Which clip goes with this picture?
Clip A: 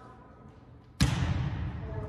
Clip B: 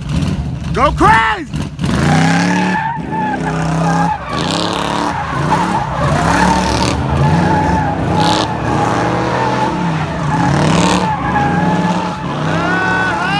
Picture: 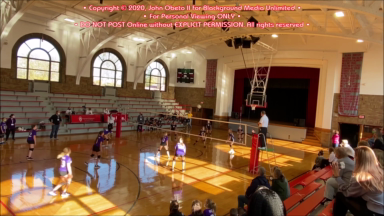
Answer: A